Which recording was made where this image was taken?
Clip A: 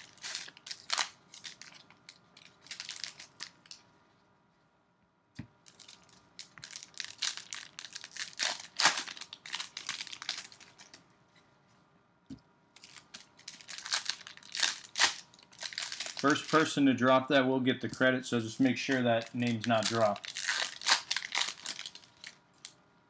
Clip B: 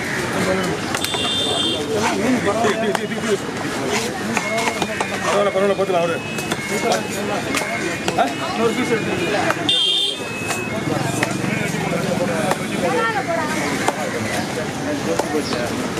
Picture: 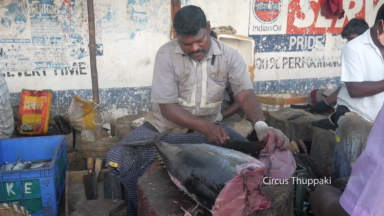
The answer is B